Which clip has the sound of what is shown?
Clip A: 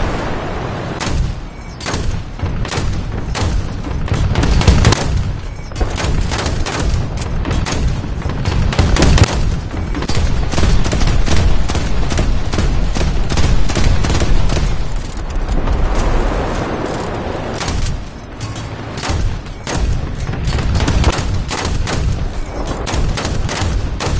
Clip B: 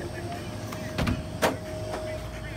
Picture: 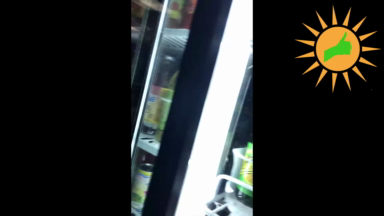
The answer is B